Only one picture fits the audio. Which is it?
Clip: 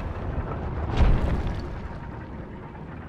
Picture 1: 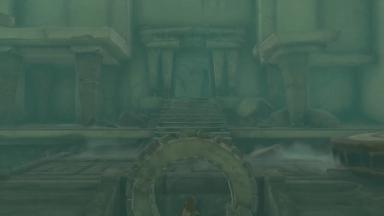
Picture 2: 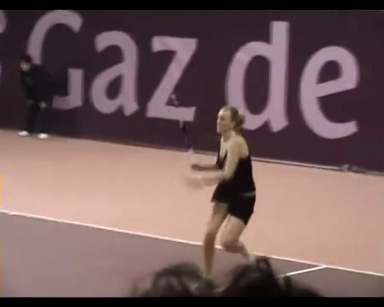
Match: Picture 1